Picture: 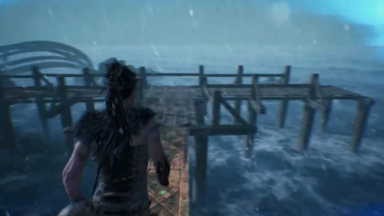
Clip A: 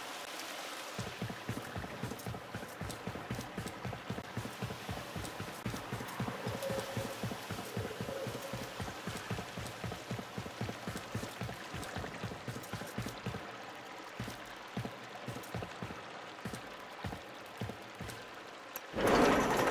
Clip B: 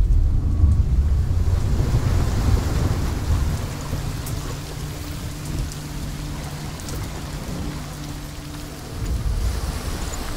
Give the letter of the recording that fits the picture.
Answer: B